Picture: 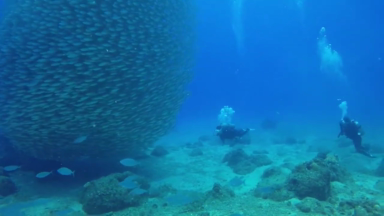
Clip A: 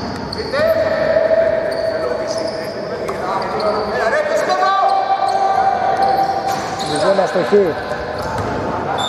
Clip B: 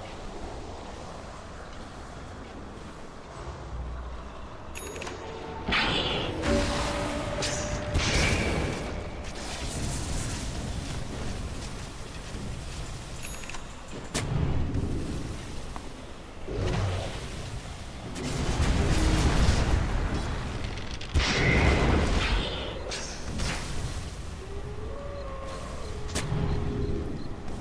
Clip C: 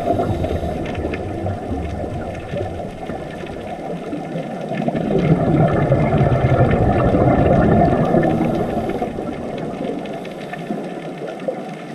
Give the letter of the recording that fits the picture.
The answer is C